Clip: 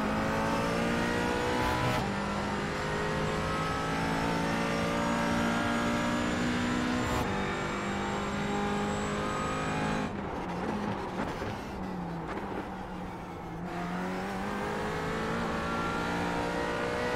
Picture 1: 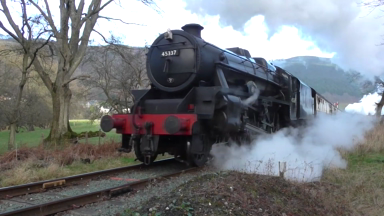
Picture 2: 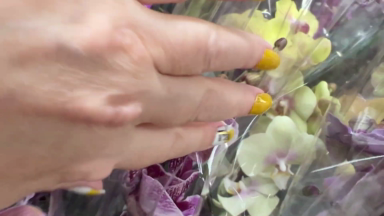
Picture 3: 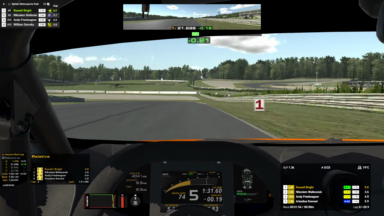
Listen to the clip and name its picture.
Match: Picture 3